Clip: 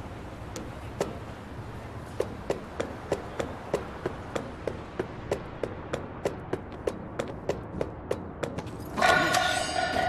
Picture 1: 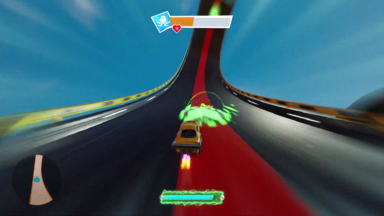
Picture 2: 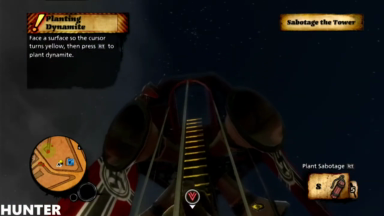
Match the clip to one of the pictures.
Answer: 2